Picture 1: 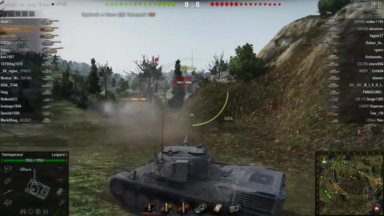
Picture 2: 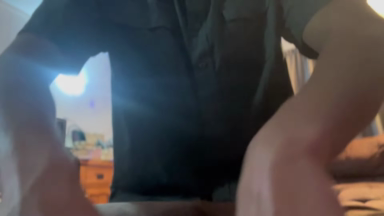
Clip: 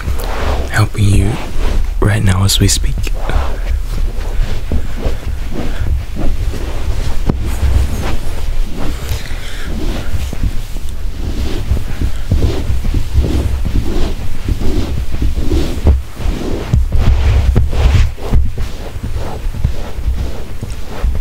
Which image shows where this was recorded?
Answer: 2